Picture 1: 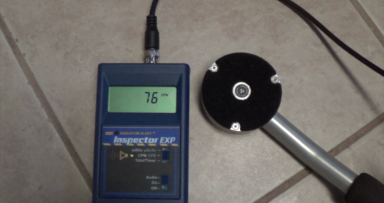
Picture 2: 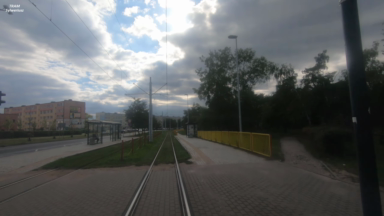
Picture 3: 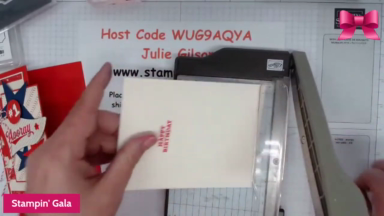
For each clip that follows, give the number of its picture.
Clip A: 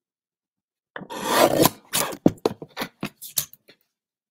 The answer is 3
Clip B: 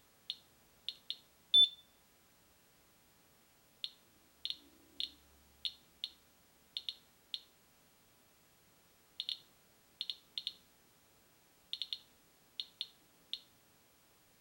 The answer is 1